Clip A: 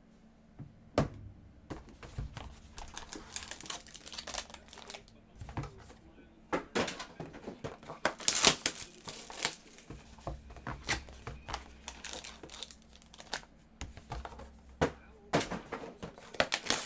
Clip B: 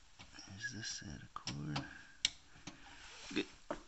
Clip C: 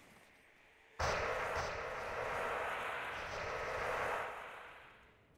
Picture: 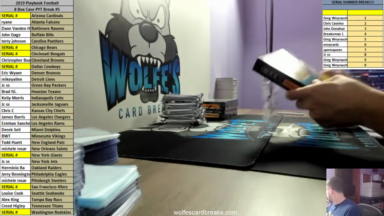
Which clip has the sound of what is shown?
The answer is A